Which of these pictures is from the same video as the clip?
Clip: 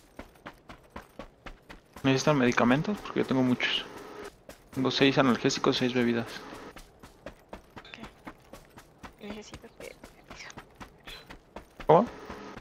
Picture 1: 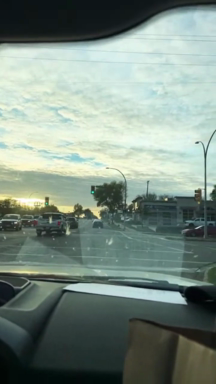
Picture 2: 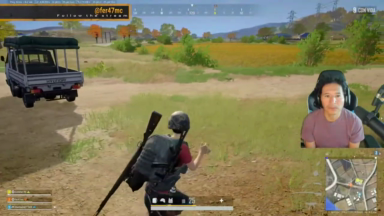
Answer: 2